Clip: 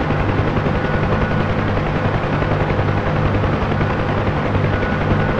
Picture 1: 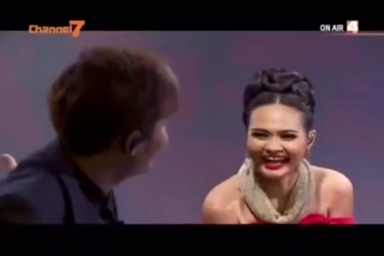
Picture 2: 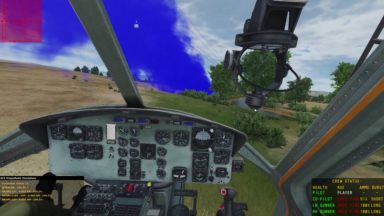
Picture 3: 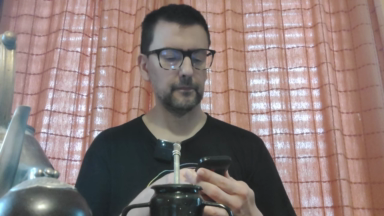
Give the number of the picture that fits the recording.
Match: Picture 2